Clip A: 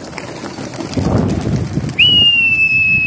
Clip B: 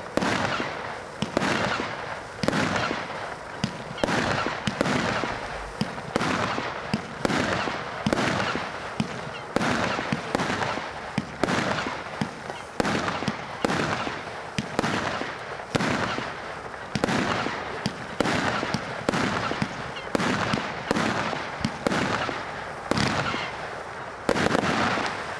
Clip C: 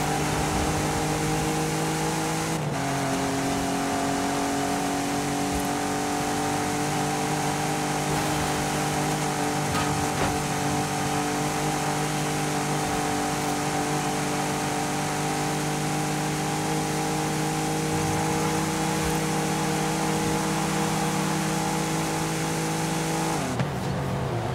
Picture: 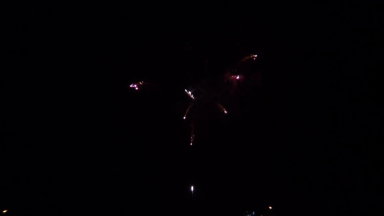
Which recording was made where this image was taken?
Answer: B